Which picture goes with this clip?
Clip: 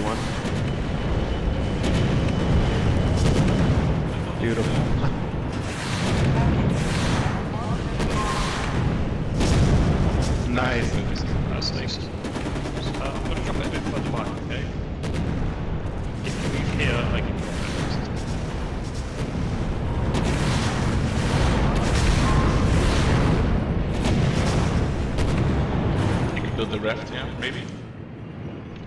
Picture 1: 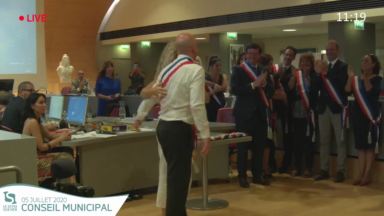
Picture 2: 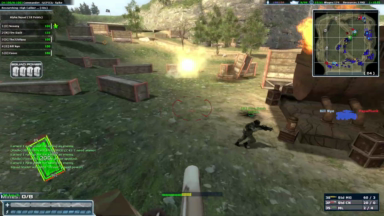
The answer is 2